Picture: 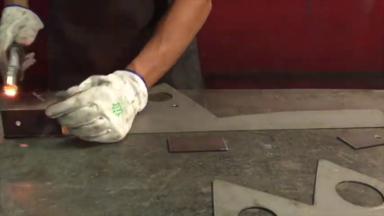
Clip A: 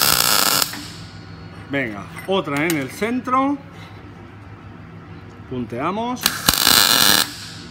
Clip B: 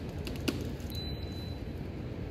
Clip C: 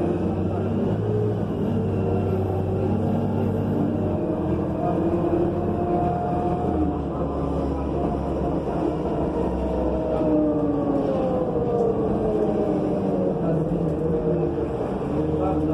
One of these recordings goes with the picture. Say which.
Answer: A